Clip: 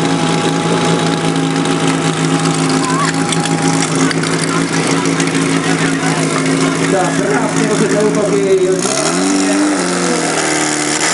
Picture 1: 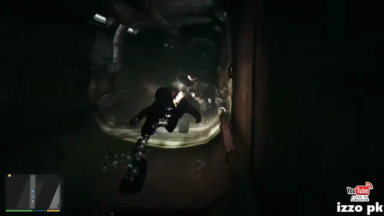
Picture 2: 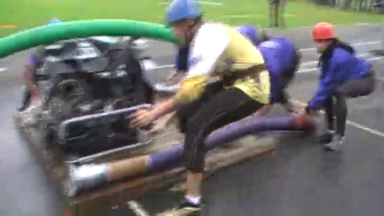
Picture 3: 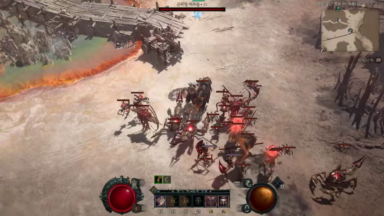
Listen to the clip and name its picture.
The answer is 2